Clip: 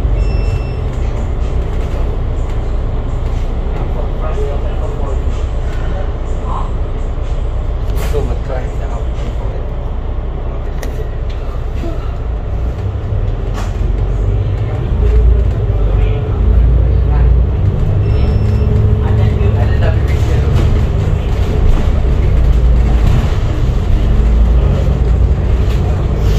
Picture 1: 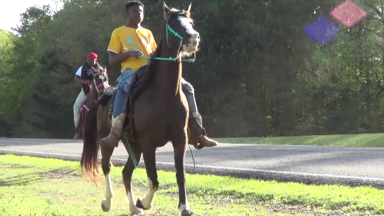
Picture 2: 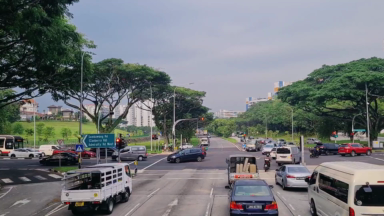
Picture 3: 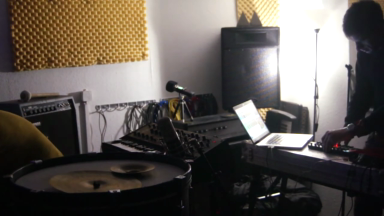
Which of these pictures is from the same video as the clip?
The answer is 2